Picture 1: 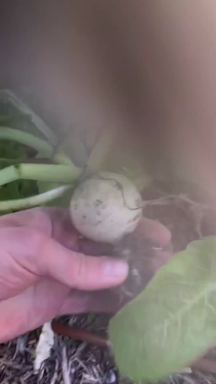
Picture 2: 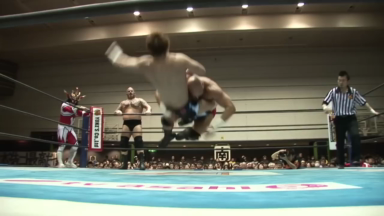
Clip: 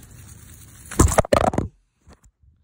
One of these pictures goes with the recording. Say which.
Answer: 1